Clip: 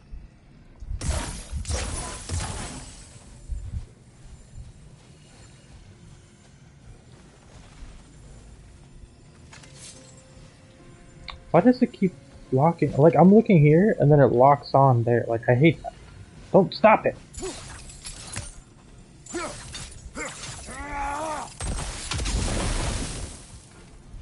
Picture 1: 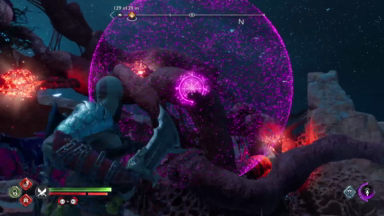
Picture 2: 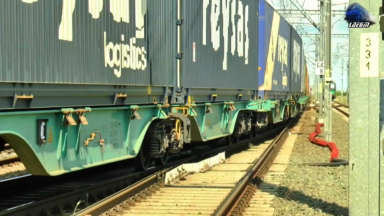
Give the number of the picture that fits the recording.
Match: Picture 1